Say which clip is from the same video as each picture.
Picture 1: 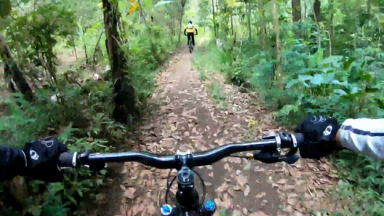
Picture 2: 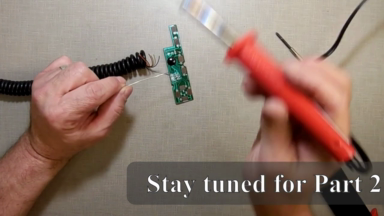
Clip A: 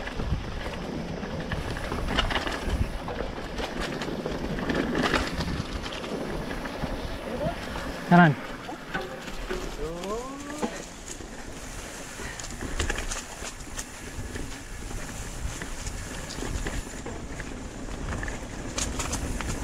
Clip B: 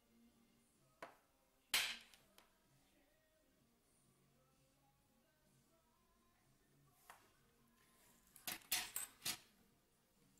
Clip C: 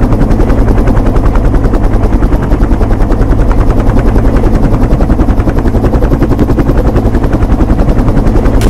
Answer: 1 A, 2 B